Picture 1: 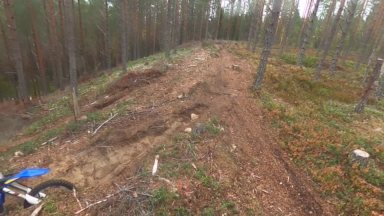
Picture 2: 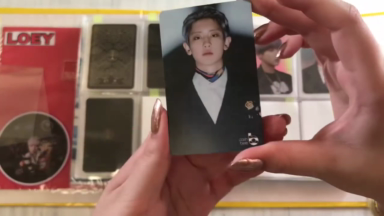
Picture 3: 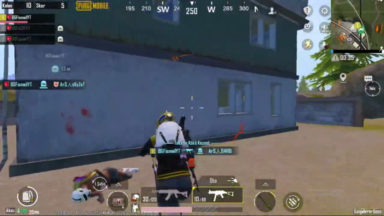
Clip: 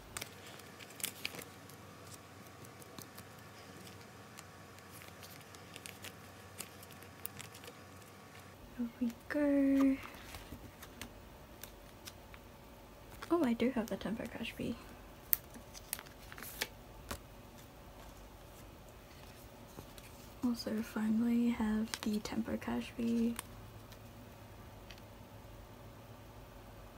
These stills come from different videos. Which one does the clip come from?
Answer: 2